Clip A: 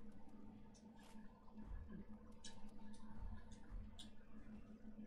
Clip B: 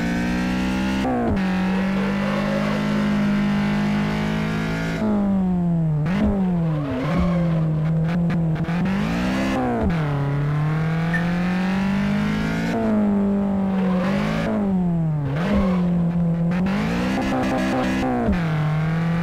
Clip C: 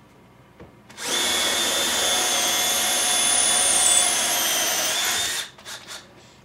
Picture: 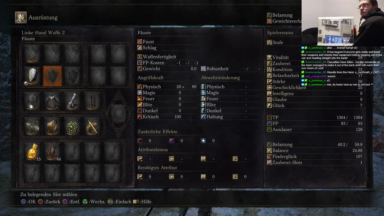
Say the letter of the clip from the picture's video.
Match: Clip A